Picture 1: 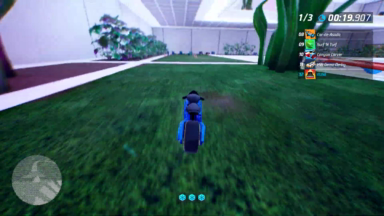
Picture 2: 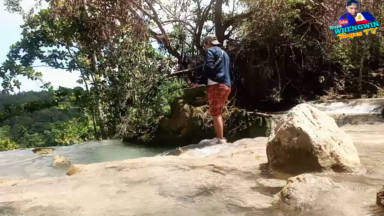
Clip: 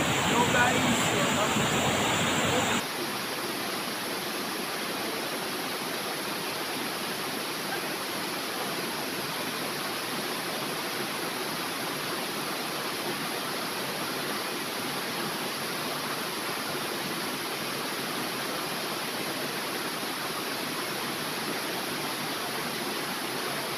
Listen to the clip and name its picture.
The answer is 2